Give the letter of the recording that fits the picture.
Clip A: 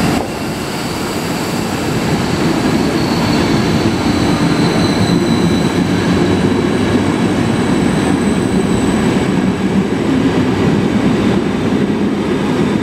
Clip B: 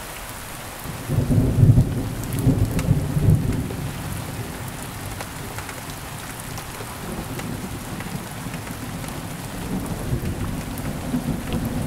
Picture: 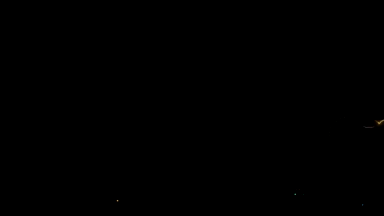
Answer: B